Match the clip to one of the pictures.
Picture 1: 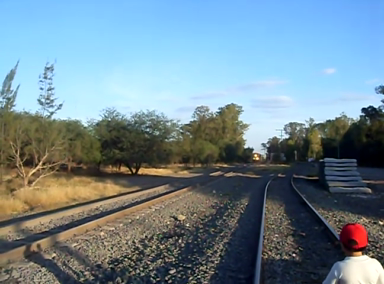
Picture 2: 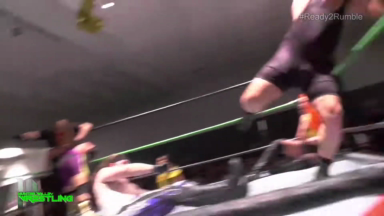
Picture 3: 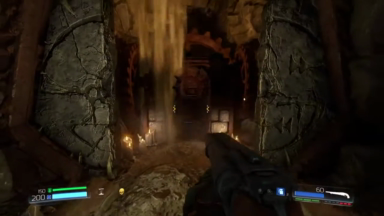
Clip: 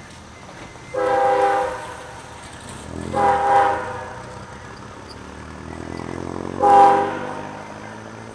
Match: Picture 1